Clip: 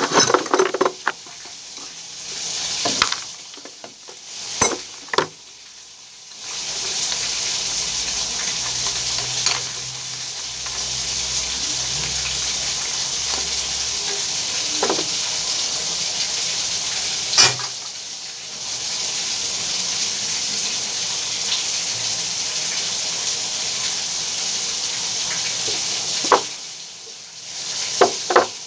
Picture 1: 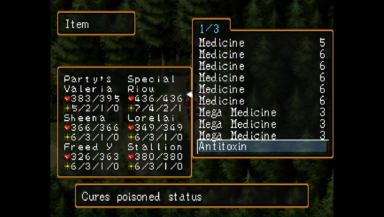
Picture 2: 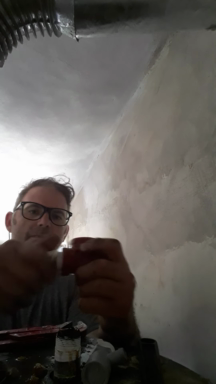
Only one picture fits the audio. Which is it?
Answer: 2